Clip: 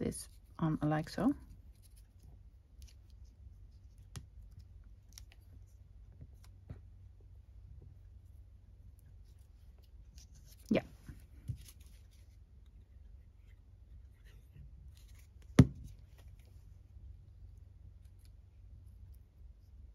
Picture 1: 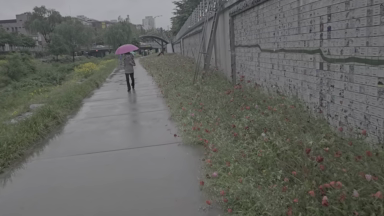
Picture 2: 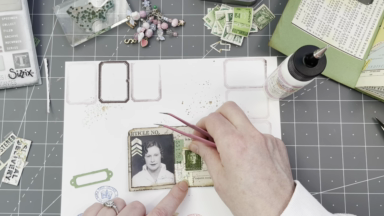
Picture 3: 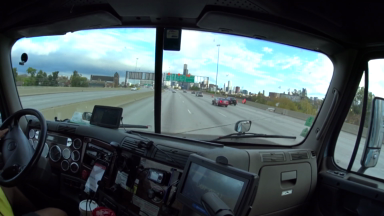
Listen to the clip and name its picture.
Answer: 2